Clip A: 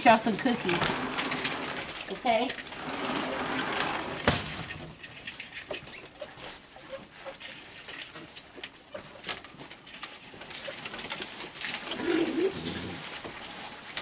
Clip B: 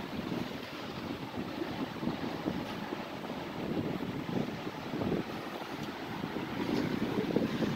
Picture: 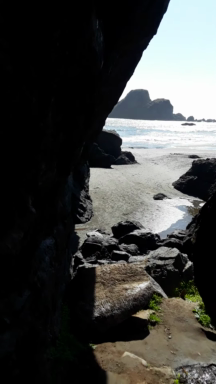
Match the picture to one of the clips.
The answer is B